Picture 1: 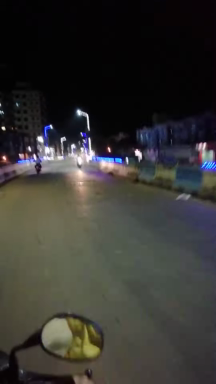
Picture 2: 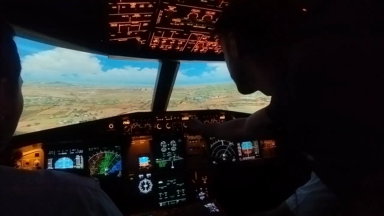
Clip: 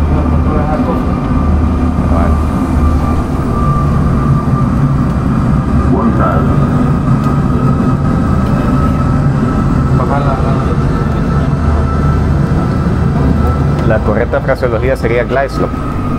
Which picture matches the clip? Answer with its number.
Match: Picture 2